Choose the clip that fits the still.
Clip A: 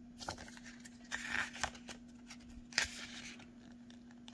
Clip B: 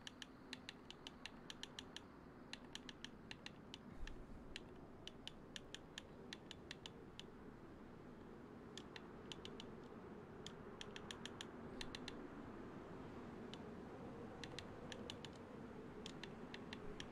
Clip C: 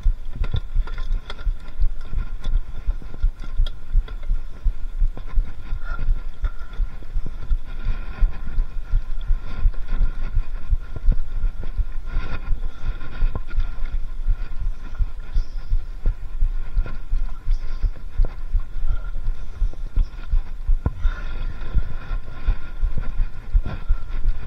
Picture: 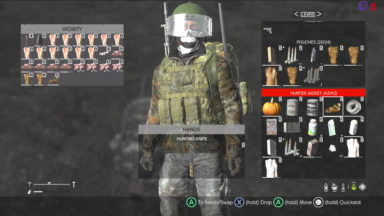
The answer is B